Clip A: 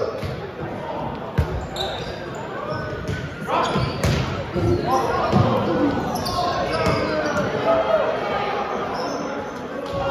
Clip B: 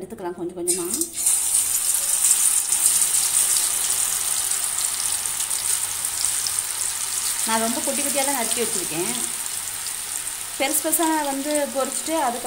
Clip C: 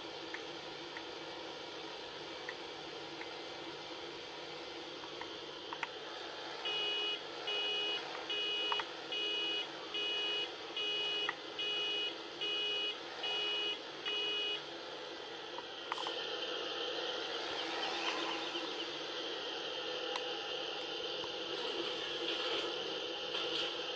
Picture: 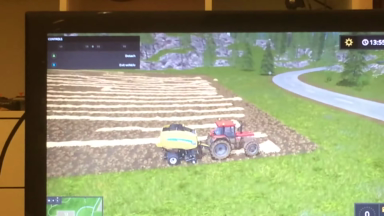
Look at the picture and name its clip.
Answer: C